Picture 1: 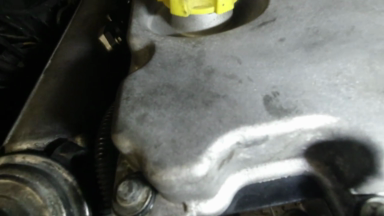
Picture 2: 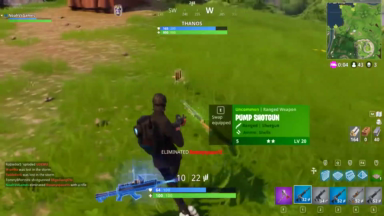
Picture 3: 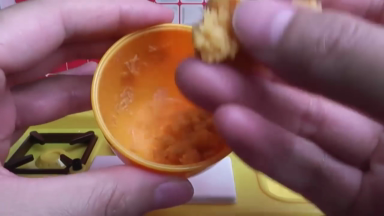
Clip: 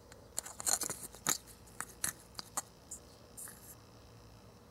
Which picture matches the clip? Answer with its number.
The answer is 3